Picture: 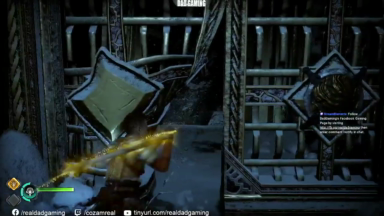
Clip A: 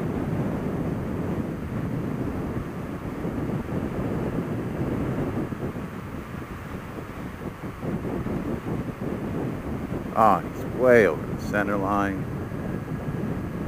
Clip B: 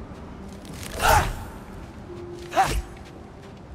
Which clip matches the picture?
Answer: B